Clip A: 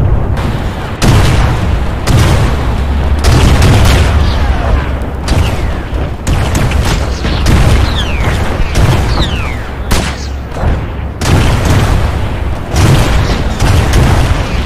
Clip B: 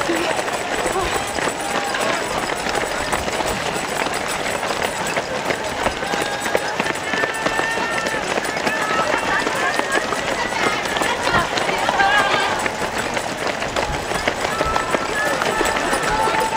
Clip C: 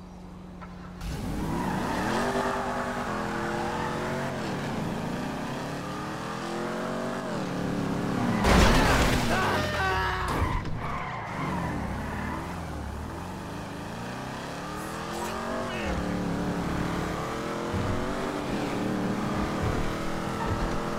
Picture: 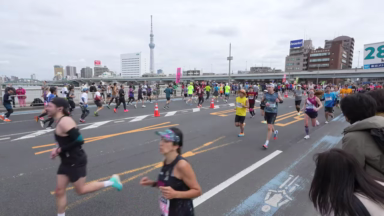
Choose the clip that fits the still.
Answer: B